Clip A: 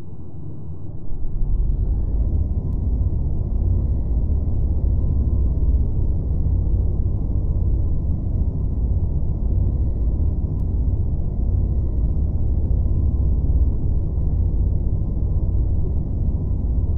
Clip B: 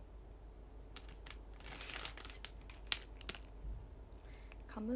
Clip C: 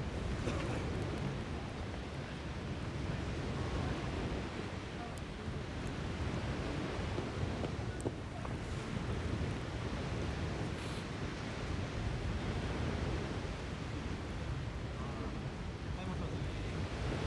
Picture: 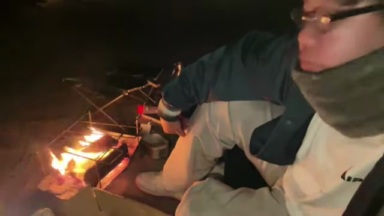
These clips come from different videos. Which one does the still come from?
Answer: C